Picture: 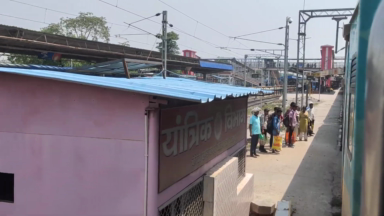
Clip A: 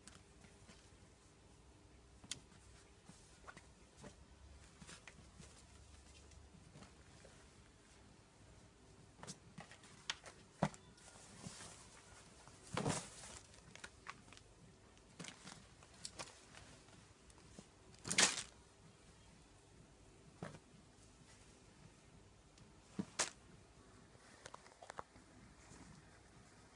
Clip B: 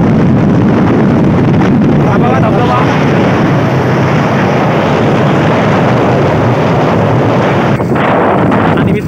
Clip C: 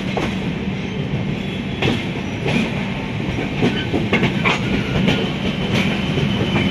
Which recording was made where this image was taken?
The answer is C